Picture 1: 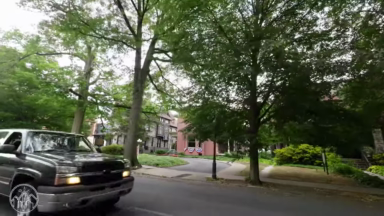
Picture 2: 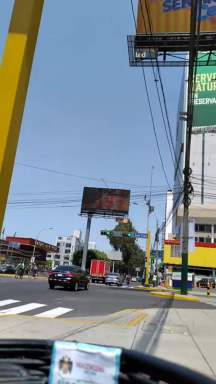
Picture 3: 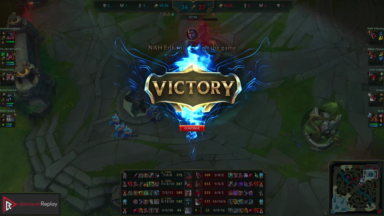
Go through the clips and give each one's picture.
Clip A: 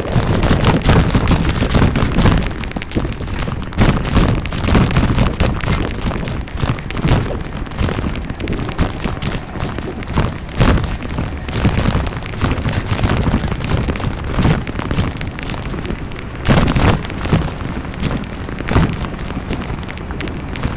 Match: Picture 2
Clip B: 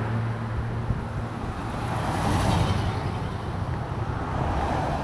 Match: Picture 1